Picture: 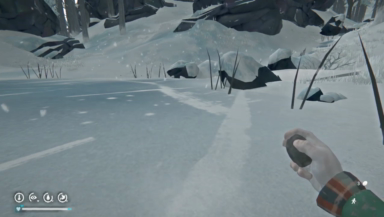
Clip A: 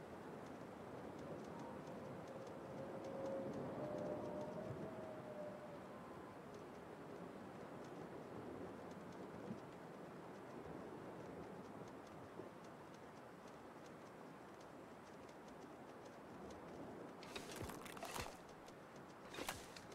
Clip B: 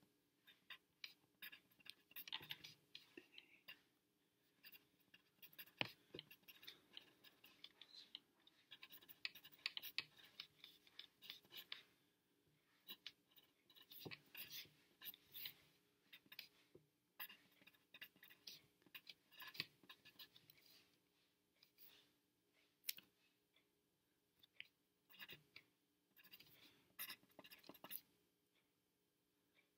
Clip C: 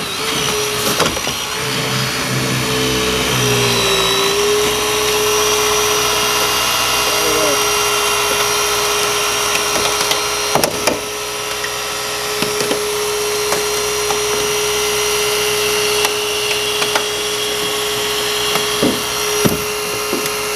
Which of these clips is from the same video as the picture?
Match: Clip A